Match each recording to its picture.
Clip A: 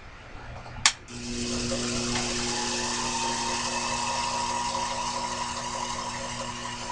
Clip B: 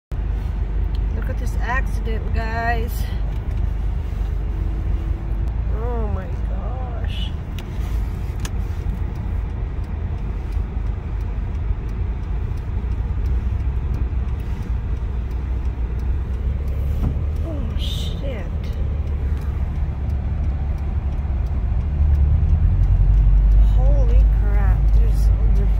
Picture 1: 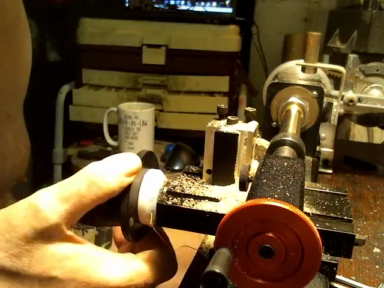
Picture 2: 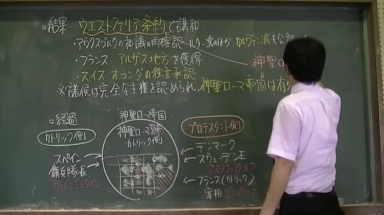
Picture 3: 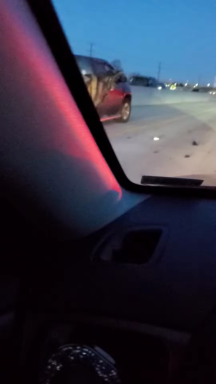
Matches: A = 1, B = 3